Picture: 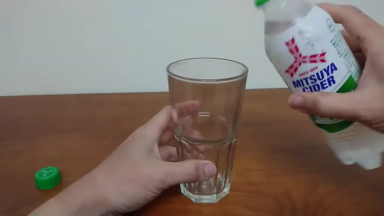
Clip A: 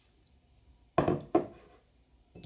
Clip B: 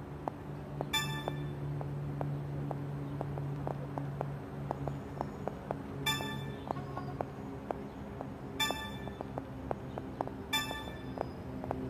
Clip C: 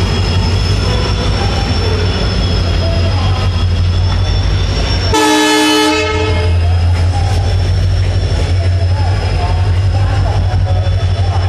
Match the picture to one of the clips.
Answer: A